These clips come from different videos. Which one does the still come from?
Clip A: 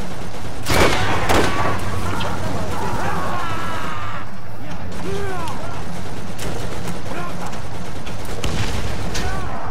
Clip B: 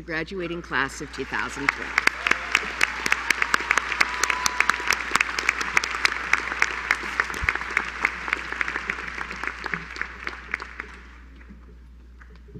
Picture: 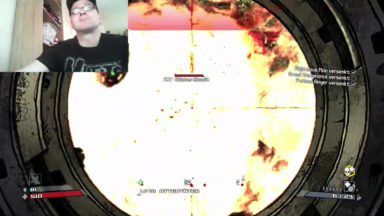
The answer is A